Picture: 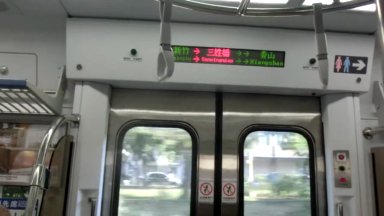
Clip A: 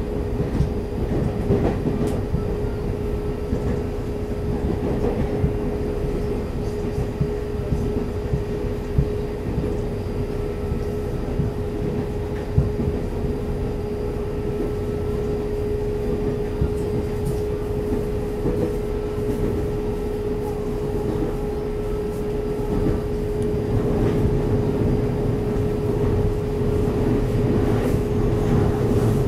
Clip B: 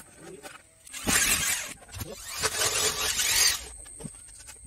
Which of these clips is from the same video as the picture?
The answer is A